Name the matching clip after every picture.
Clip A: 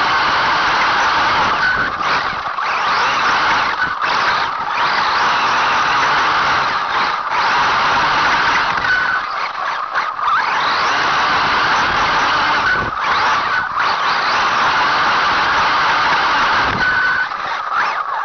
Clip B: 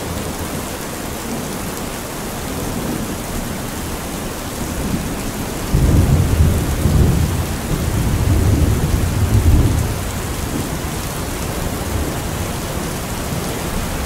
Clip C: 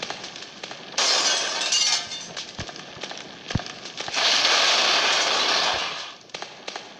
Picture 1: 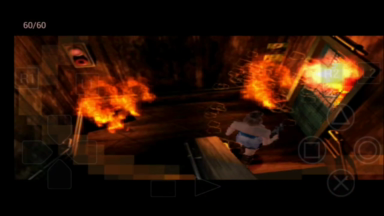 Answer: C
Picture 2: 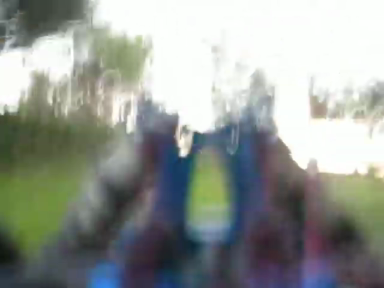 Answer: A